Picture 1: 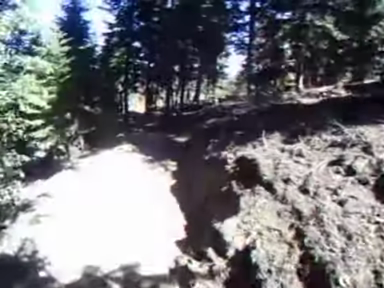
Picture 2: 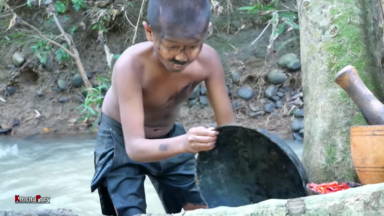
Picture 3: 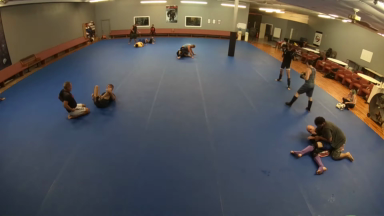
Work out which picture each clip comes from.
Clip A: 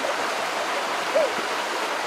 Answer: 2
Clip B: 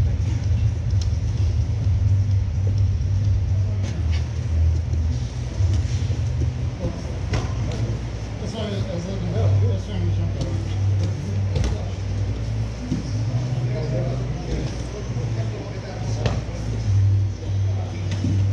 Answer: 3